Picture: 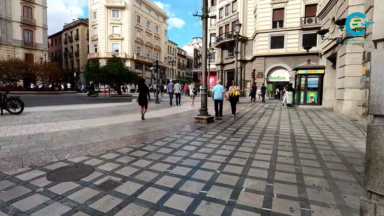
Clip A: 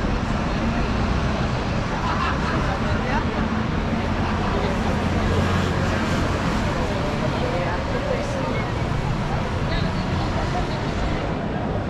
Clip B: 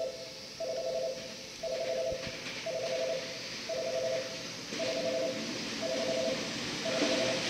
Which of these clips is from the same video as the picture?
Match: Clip A